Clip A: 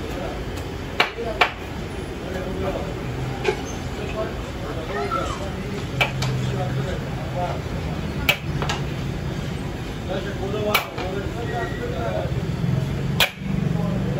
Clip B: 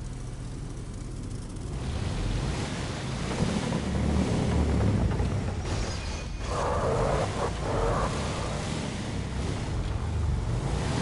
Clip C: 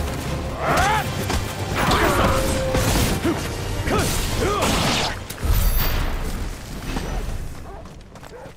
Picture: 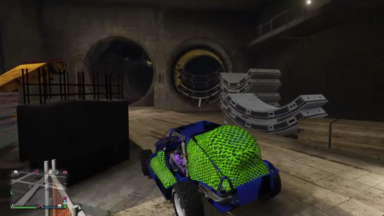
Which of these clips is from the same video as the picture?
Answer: B